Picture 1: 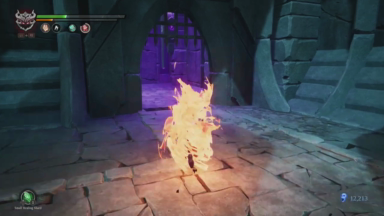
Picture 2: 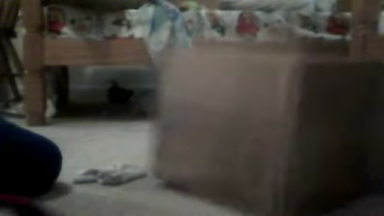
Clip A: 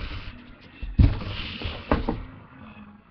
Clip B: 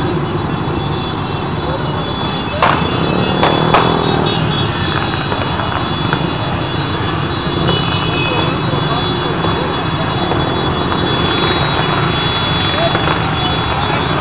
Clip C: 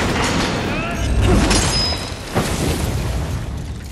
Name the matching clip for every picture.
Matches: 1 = C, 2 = A